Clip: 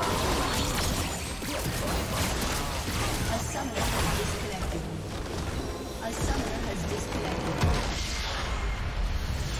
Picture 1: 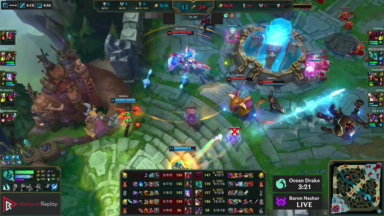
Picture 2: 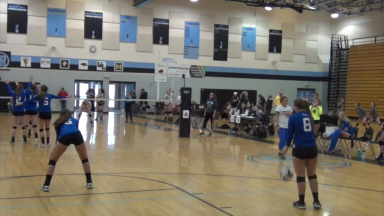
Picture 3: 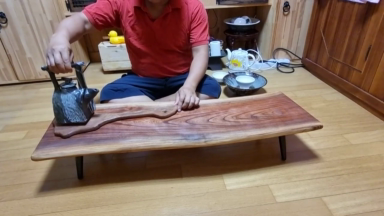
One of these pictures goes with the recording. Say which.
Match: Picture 1